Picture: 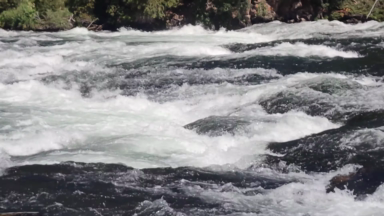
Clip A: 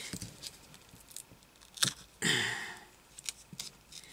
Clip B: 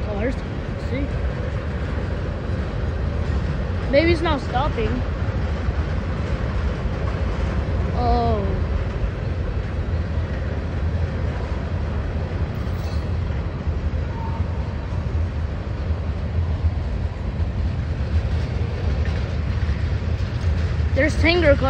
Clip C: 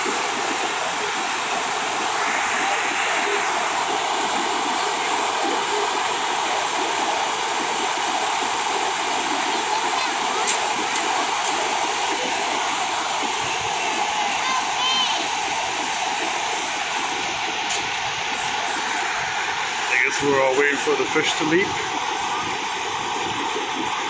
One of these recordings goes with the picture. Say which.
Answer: C